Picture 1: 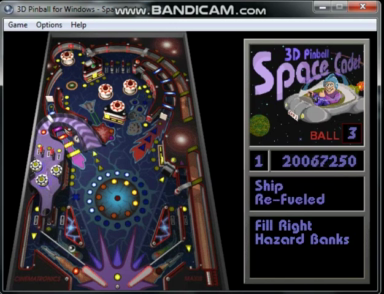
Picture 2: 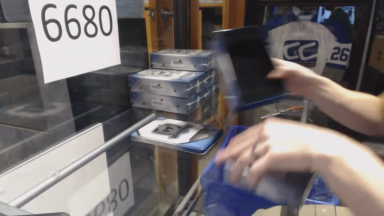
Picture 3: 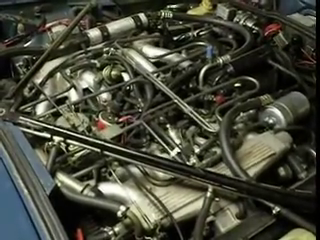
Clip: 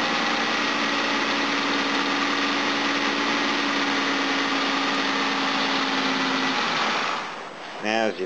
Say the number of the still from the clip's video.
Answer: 3